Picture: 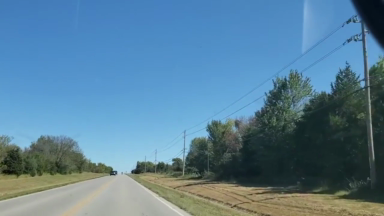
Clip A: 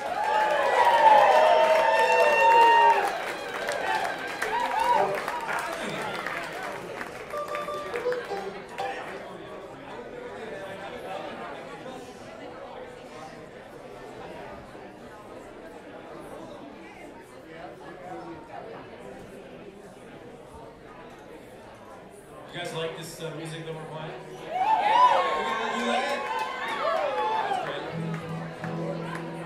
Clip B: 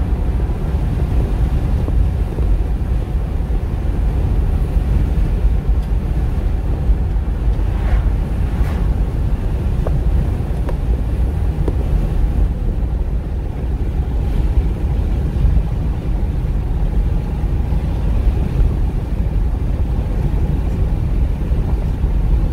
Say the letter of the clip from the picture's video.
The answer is B